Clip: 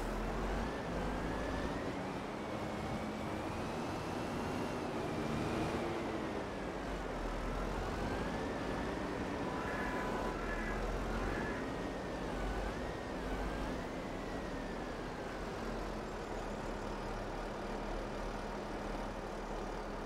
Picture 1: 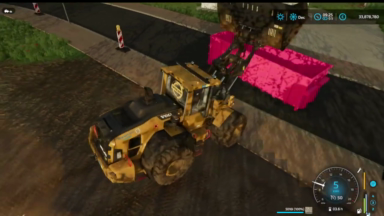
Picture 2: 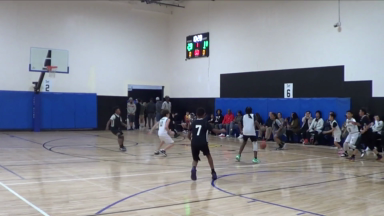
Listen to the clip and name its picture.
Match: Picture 1